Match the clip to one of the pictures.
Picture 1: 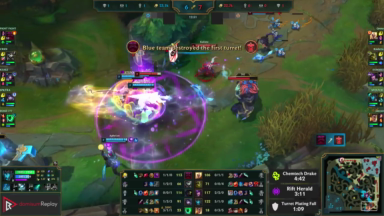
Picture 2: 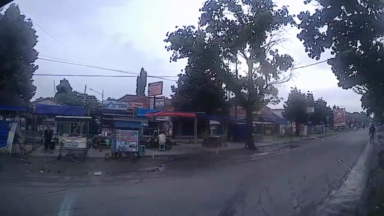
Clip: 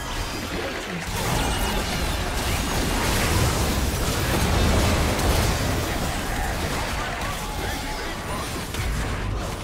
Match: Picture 1